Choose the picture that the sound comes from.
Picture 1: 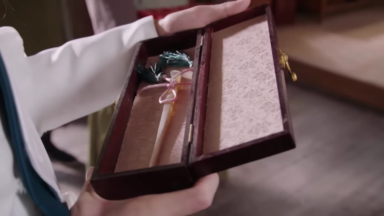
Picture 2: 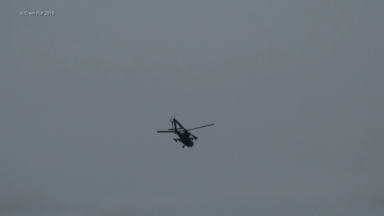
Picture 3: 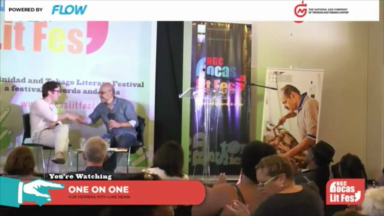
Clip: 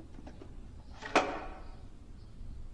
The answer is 1